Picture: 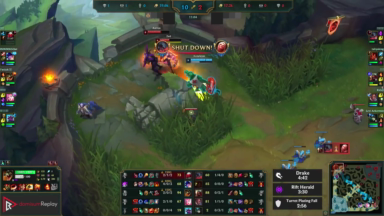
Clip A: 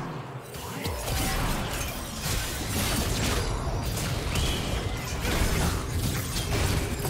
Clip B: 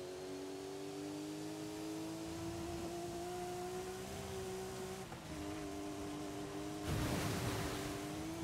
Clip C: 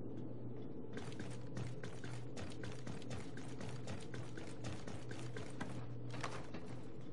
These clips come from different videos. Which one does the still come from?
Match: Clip A